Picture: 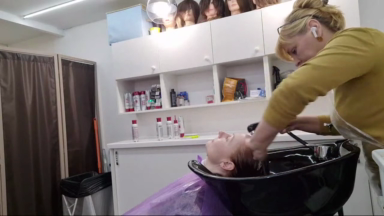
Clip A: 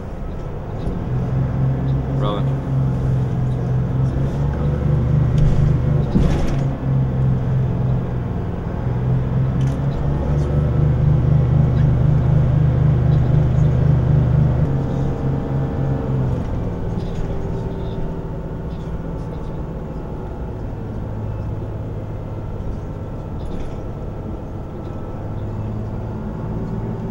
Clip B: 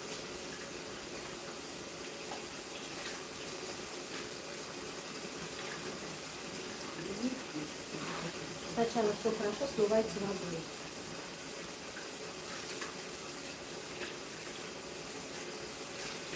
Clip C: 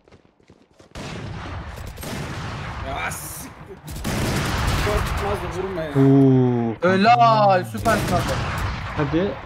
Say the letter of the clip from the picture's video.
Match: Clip B